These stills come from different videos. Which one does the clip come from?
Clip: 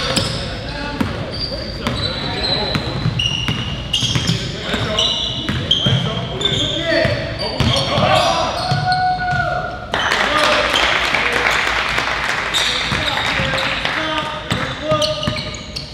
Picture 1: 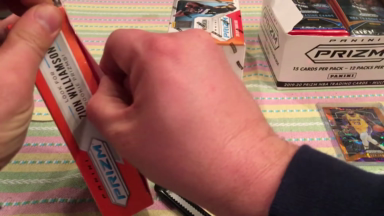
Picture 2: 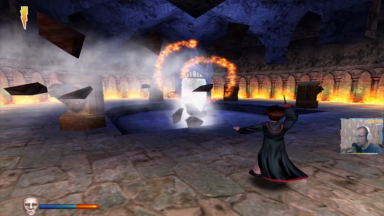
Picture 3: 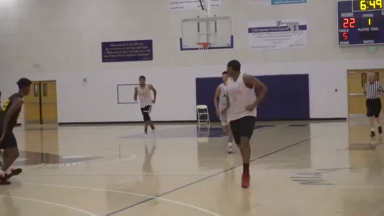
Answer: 3